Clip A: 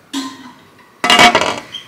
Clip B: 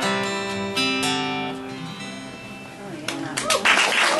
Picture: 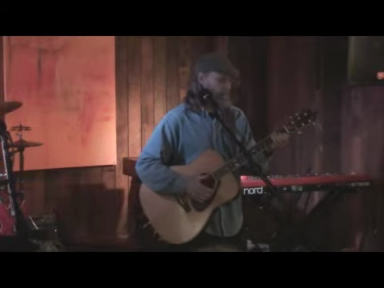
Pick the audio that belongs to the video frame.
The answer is B